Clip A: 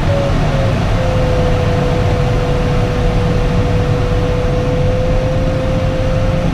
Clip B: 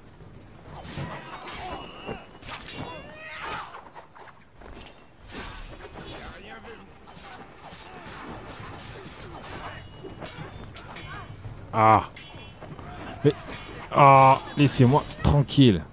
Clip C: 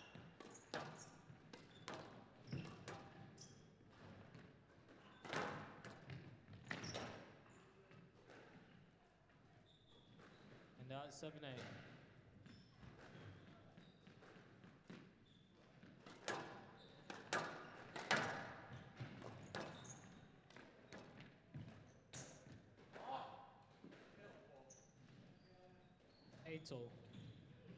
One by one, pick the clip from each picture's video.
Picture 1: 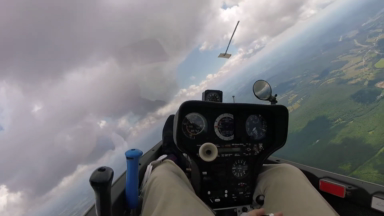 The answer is A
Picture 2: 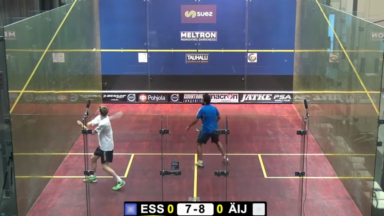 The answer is C